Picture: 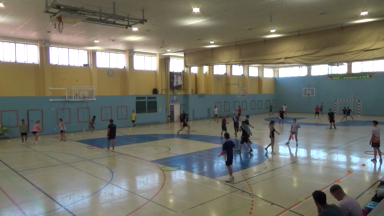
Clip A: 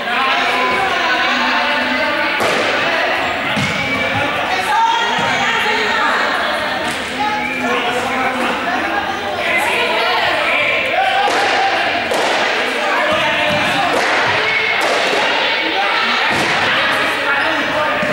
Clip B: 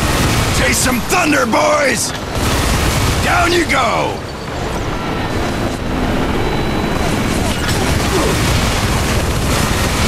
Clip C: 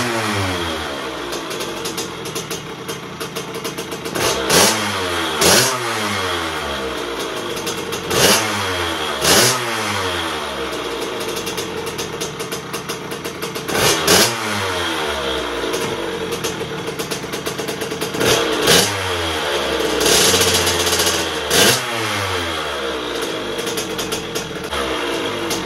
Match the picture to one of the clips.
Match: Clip A